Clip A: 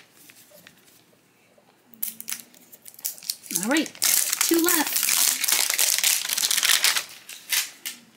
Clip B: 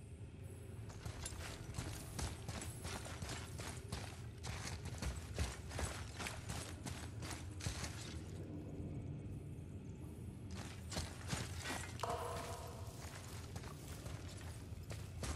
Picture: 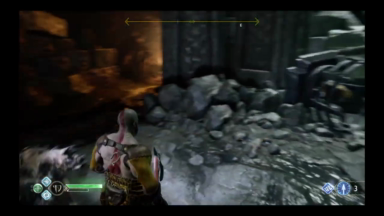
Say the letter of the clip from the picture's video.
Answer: B